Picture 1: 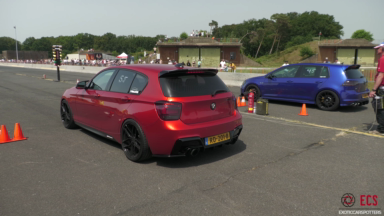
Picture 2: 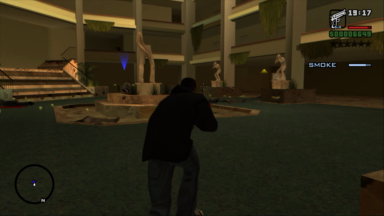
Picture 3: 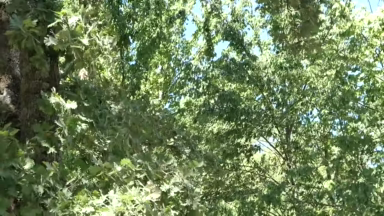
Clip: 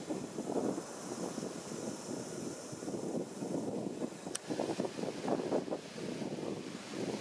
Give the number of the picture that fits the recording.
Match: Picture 3